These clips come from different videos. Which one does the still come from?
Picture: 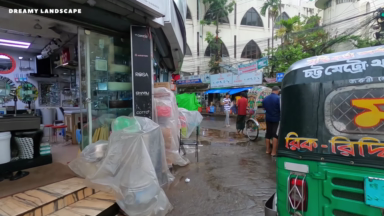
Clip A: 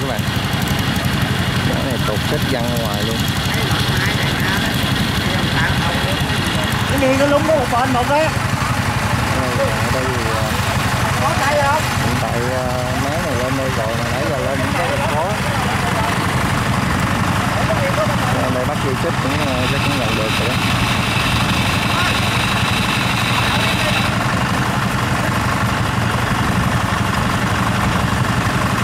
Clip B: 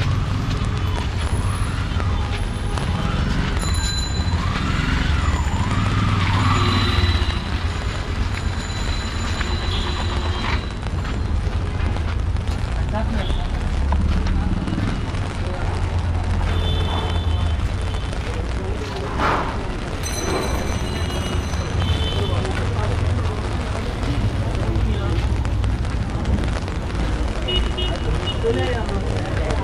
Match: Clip B